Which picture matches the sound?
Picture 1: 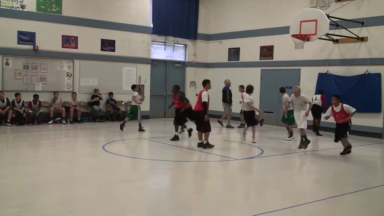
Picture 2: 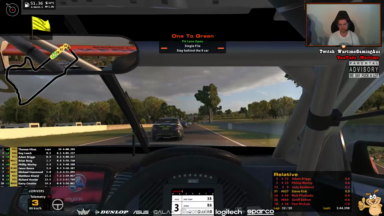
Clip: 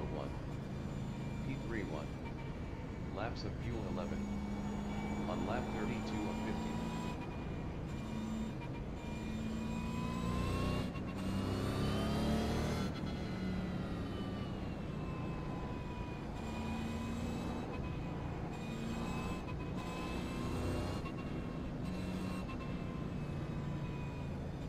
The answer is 2